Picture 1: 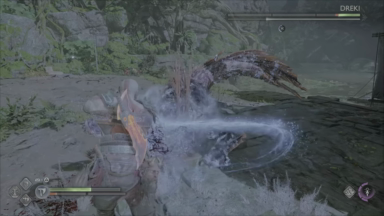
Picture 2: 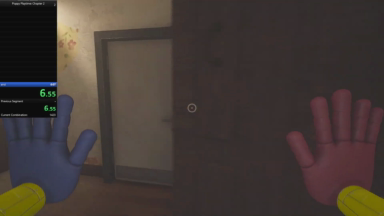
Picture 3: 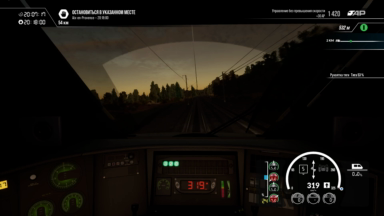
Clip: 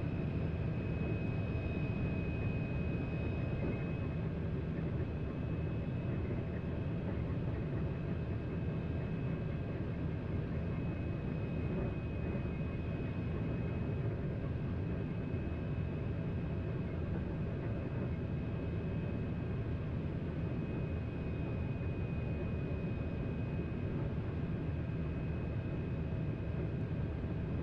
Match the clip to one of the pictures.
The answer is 3